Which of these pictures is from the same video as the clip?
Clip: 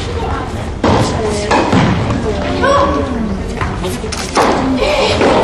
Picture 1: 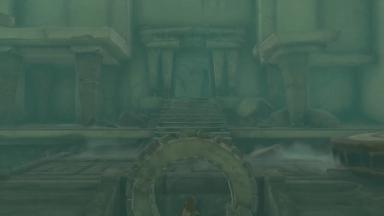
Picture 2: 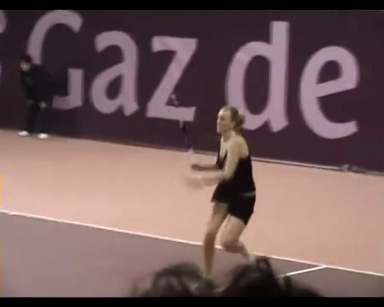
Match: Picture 2